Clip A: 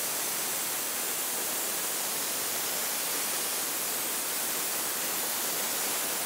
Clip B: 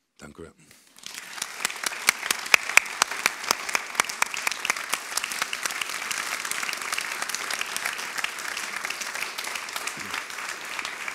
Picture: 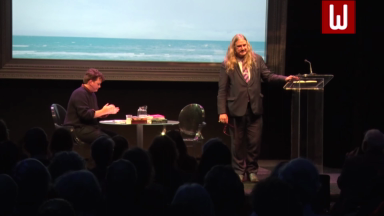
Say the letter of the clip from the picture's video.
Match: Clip B